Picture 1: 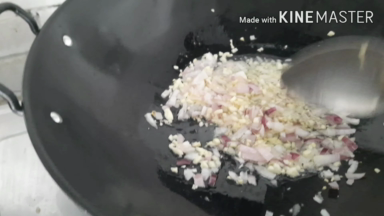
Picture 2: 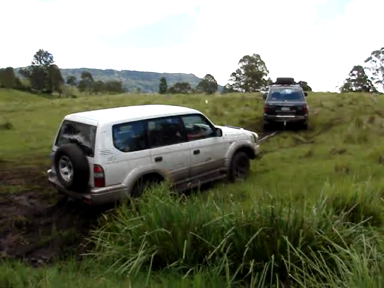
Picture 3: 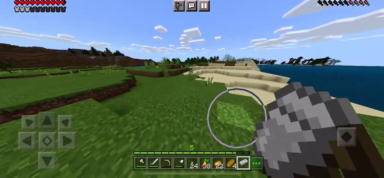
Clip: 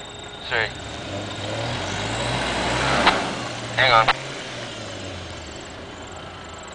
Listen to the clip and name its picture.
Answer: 2